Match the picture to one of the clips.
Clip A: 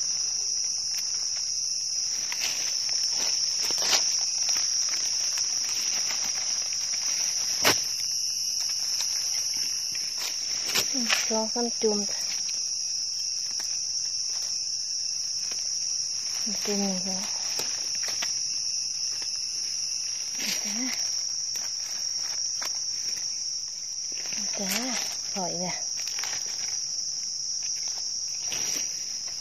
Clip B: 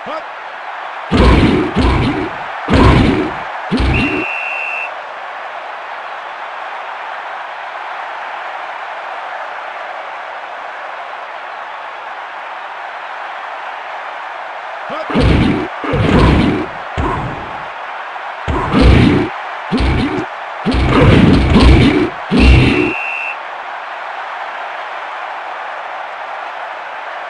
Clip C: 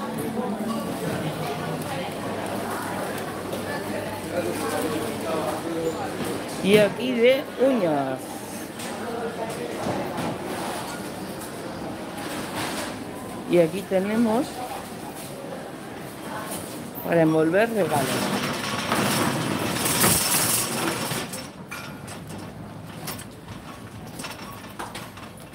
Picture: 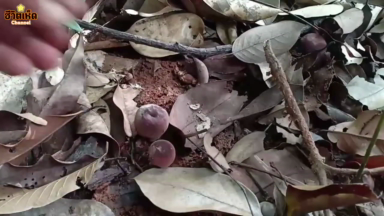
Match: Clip A